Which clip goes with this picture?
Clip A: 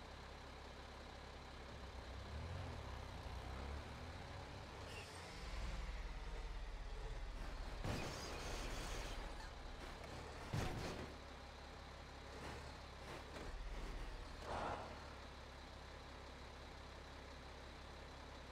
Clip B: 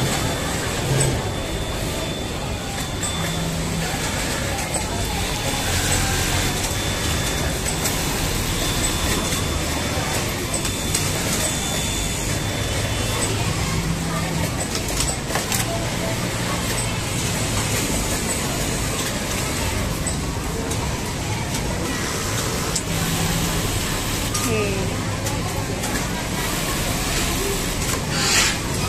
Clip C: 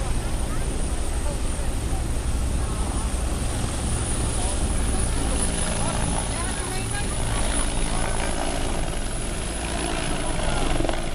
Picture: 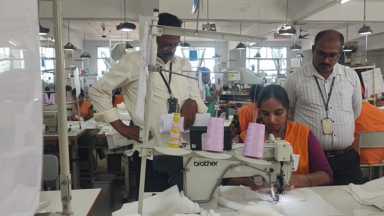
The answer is B